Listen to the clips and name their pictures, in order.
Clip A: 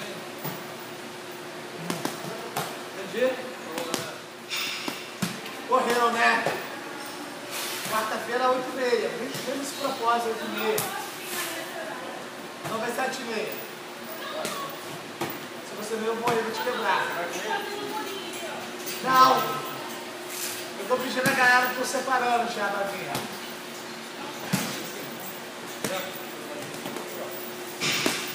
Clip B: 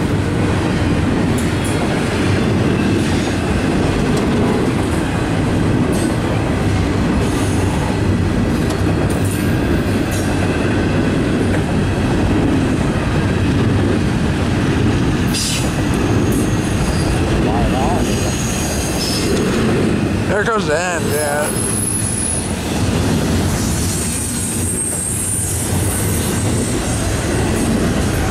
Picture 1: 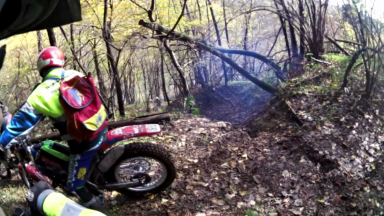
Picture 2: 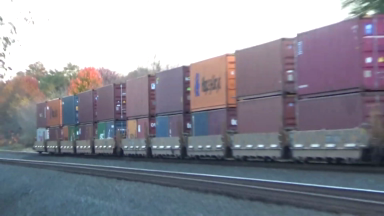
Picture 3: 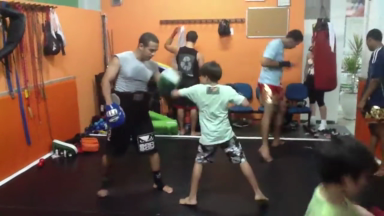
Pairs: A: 3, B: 2